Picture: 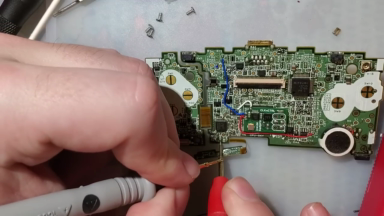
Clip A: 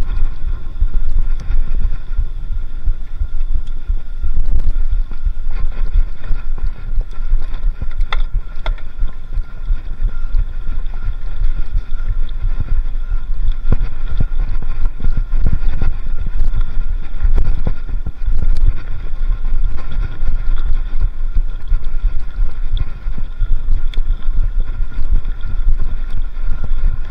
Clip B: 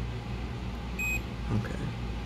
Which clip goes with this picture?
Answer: B